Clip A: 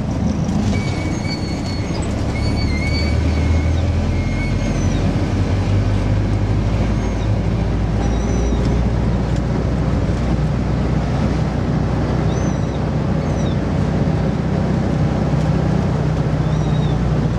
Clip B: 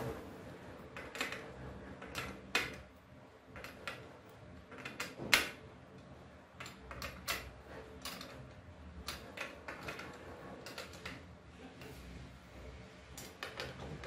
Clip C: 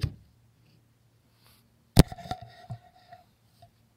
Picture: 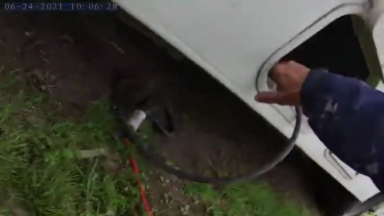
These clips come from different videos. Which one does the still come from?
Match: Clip C